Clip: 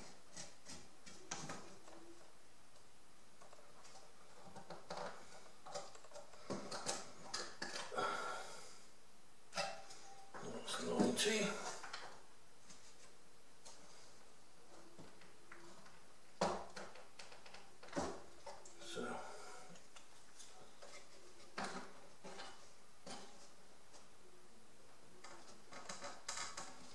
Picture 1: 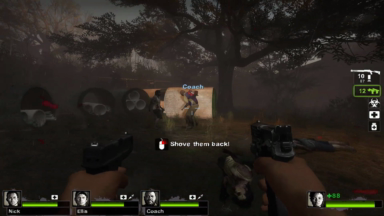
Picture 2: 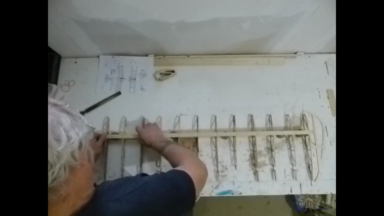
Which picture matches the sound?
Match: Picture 2